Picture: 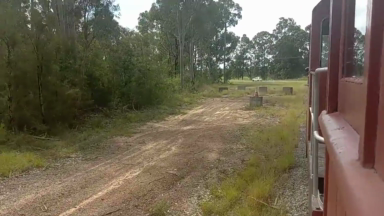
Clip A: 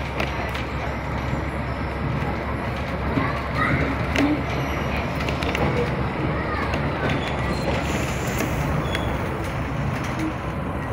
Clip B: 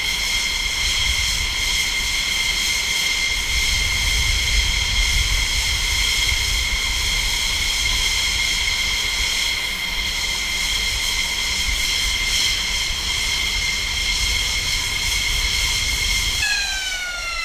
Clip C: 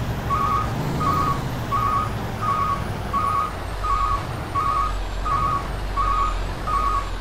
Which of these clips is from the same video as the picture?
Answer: A